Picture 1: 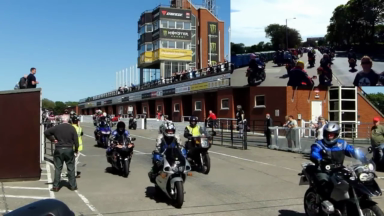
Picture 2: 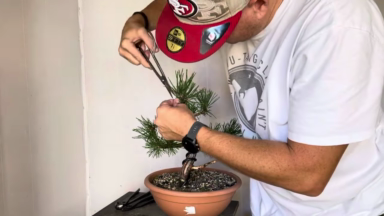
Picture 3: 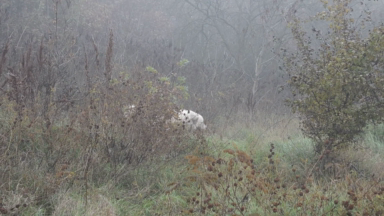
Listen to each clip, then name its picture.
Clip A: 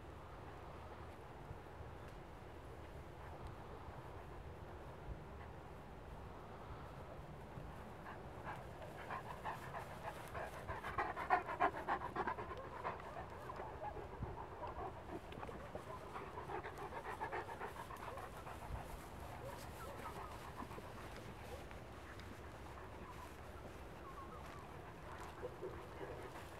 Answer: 3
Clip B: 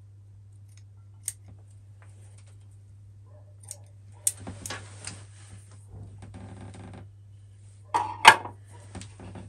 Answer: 2